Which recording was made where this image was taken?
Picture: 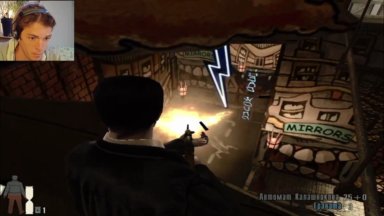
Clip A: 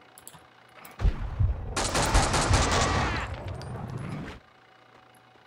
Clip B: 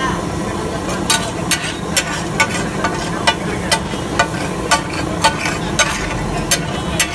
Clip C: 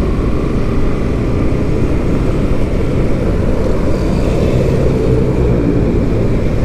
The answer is A